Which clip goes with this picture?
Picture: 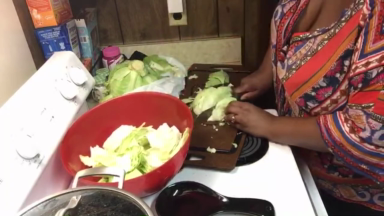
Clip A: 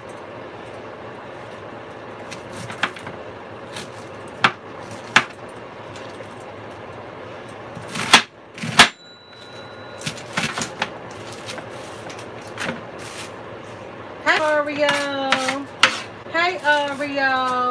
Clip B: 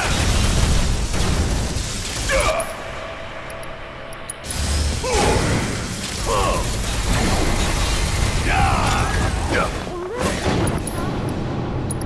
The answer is A